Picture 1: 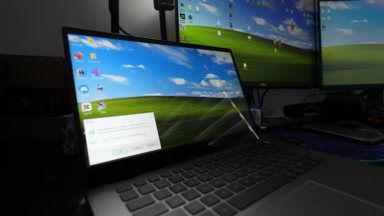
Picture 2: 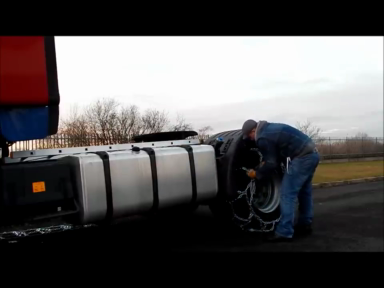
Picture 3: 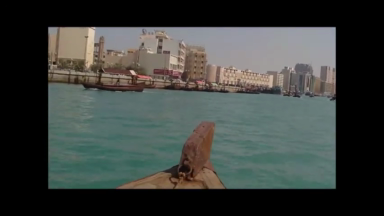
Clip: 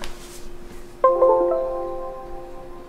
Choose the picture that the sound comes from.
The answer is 1